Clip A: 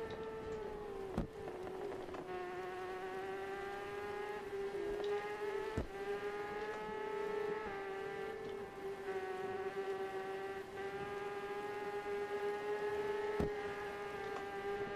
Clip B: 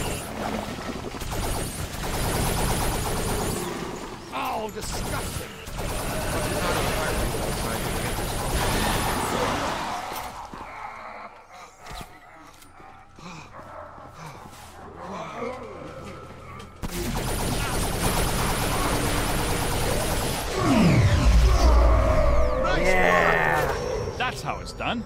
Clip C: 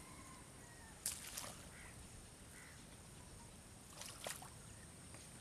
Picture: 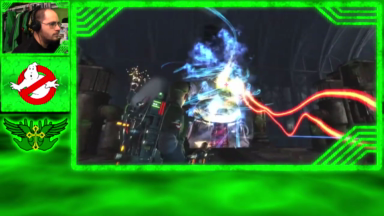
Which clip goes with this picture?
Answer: B